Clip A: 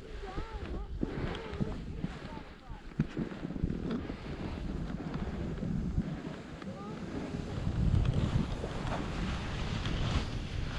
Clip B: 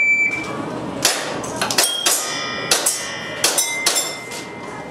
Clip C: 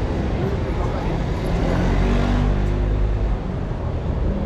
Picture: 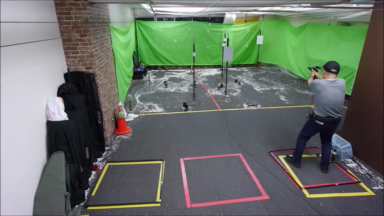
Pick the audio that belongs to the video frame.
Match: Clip B